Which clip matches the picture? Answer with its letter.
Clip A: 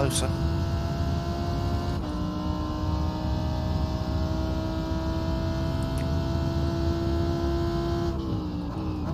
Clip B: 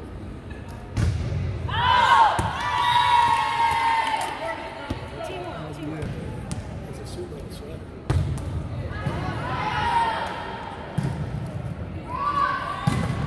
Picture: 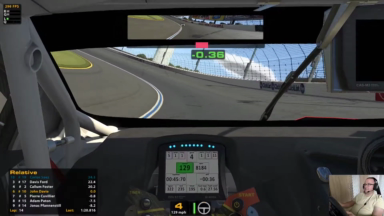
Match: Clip A